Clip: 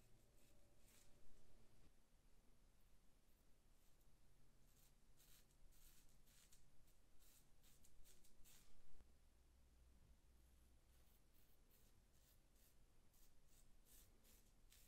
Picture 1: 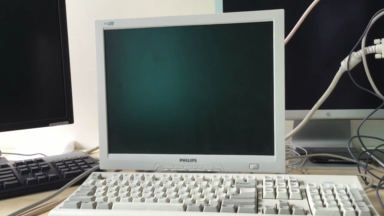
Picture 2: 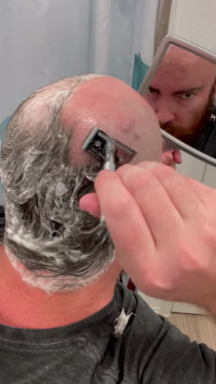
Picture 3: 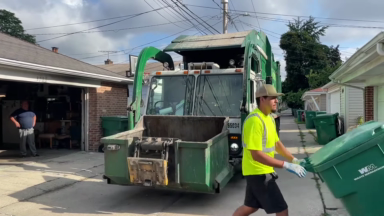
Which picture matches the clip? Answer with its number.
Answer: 2